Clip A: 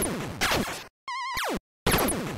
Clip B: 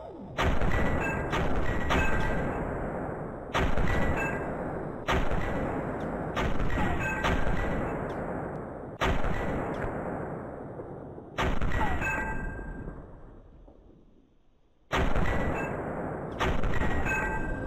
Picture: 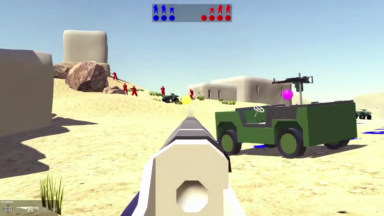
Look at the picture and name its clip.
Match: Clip B